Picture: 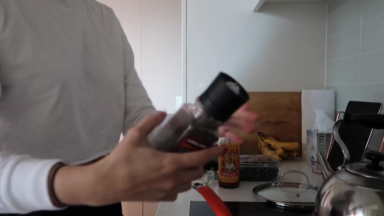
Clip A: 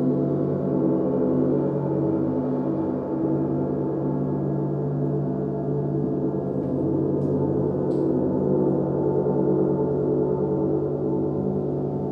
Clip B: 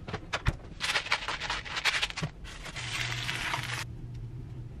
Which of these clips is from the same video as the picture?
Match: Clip B